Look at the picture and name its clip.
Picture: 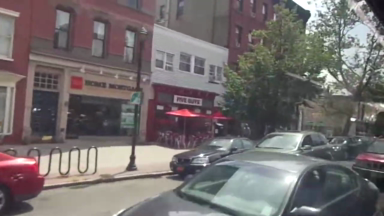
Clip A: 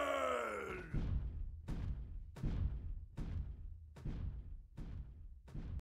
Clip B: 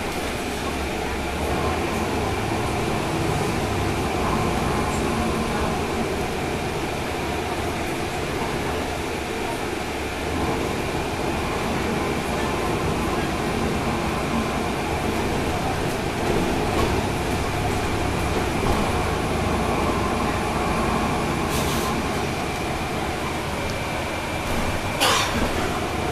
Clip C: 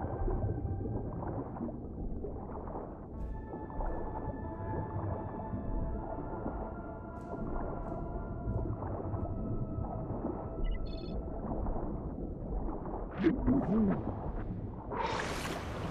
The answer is B